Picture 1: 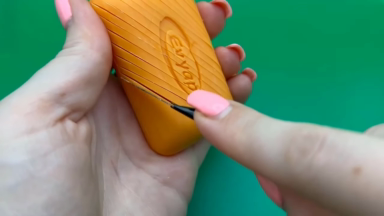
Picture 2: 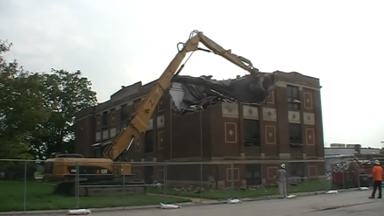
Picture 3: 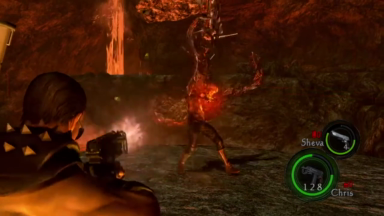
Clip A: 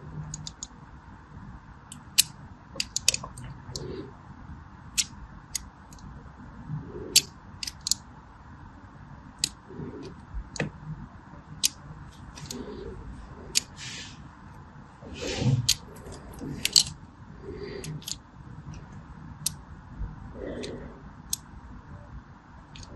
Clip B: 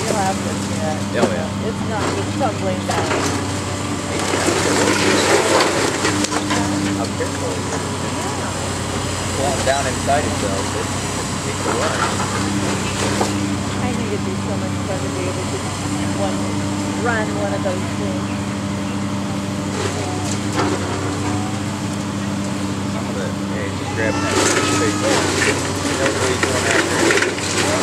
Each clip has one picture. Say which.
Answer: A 1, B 2